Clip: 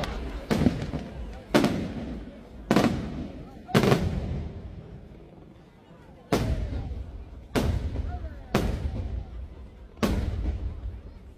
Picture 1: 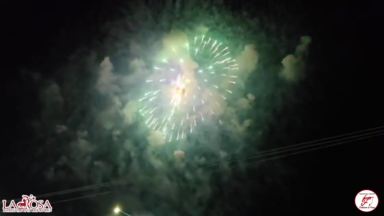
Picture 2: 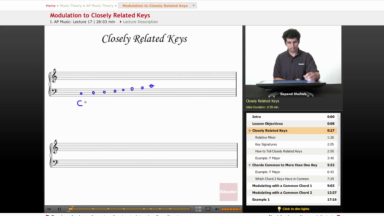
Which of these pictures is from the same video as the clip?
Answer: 1